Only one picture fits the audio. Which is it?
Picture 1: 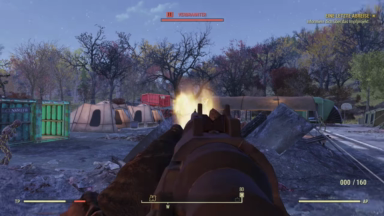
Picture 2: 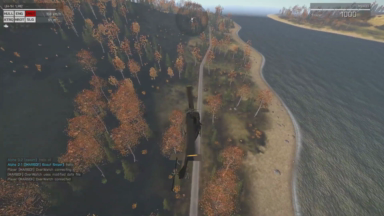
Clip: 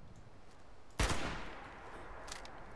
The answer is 1